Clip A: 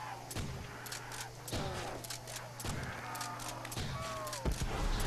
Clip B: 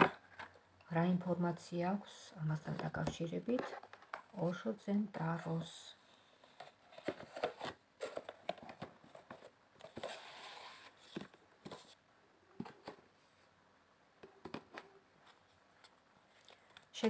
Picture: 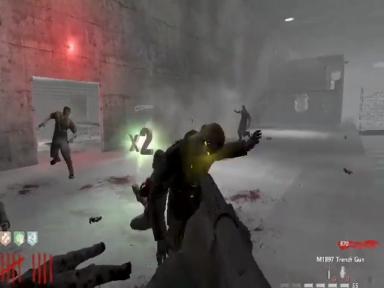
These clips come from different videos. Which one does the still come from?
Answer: A